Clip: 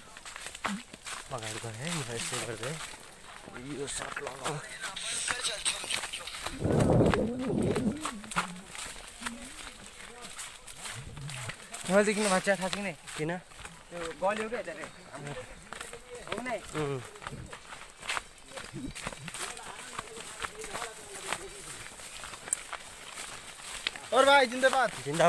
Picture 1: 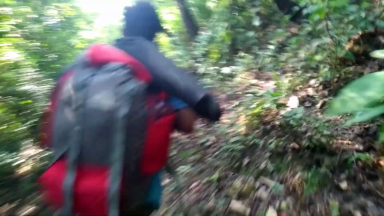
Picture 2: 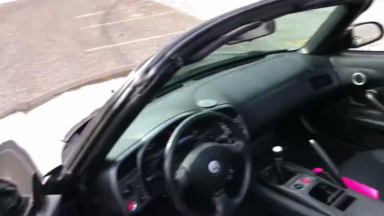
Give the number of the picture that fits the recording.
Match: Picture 1